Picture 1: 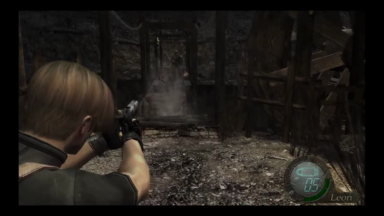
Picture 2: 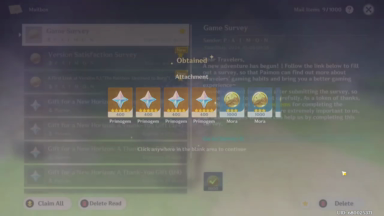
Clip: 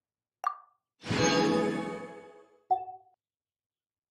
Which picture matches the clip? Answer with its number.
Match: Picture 2